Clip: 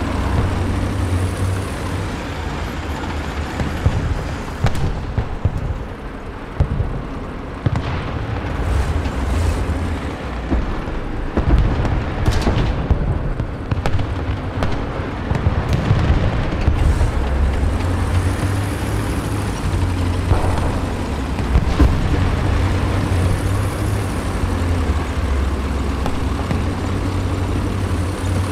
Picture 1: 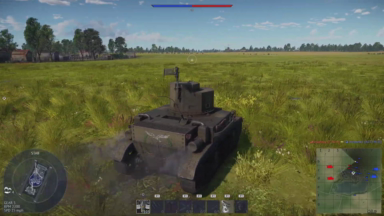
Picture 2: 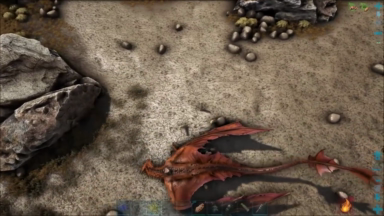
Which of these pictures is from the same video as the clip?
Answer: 1